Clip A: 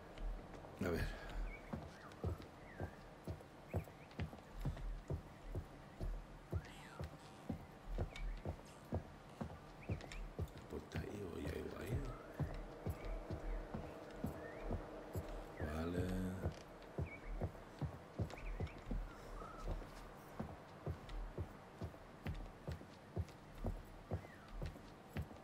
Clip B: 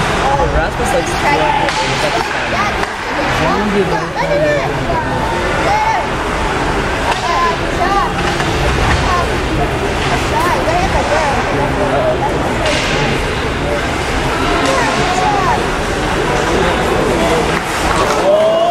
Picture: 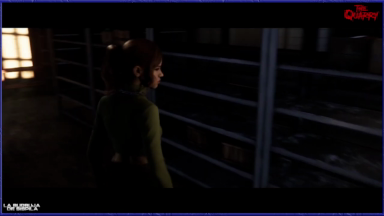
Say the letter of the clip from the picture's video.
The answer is A